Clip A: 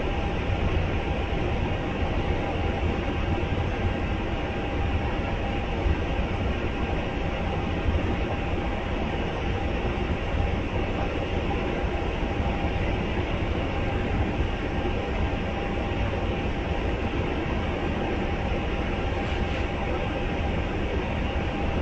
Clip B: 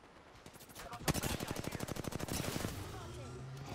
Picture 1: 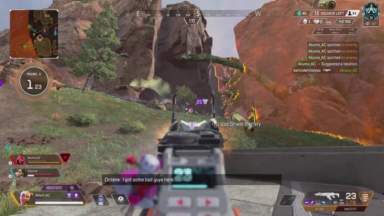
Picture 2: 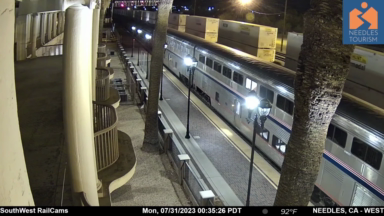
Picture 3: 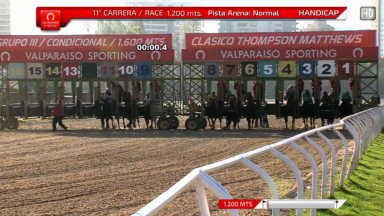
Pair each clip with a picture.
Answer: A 2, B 1